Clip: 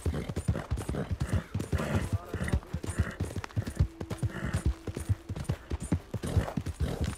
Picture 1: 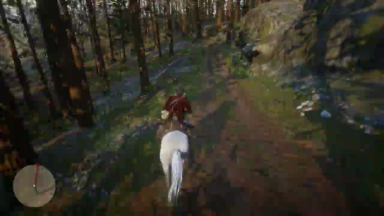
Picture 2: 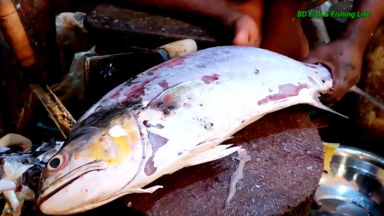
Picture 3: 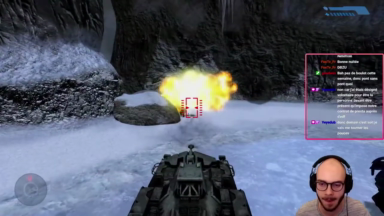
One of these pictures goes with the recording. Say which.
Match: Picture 1